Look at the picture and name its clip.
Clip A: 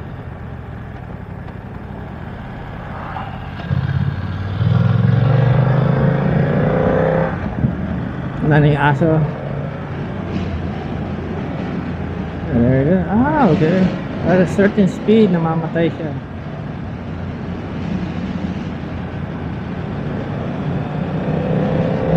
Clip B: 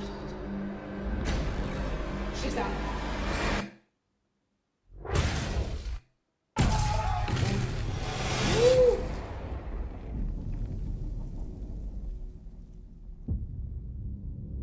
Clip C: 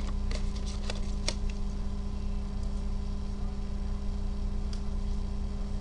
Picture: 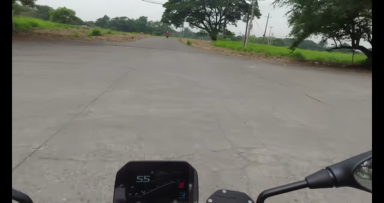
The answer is A